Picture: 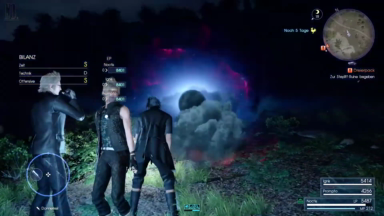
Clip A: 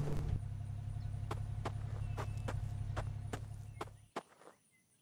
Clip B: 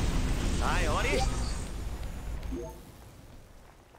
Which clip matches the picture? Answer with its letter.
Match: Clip B